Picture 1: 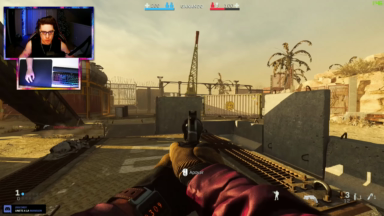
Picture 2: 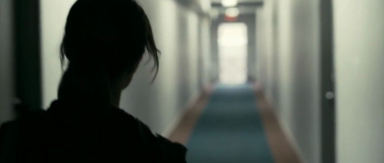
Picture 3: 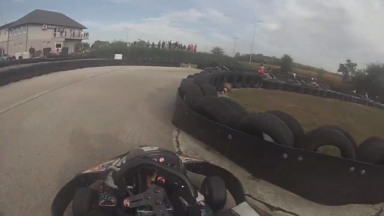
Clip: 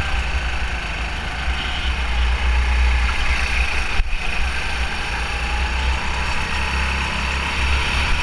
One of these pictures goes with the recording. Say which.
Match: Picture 3